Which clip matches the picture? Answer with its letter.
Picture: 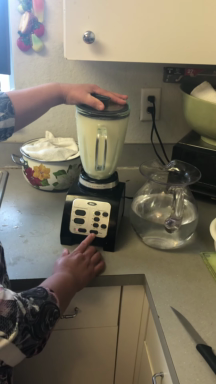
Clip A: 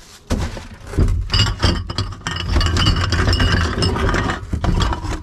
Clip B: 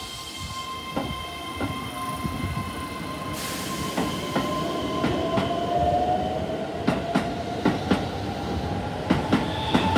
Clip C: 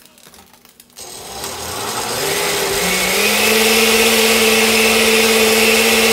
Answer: C